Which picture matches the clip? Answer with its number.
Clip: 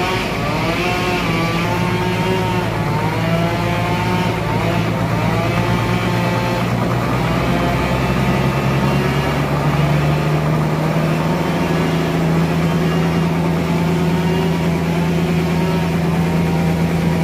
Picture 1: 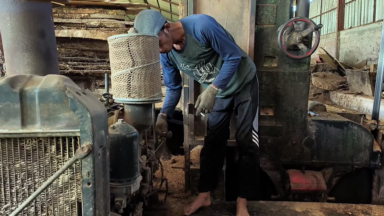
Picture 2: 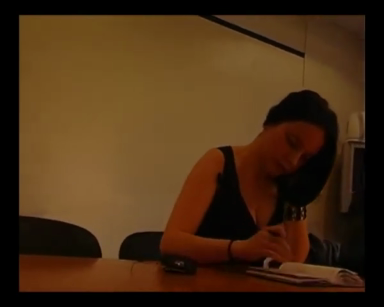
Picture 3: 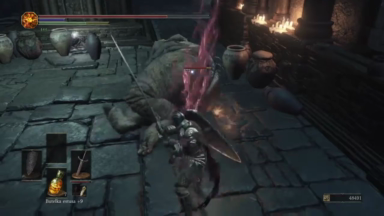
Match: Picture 1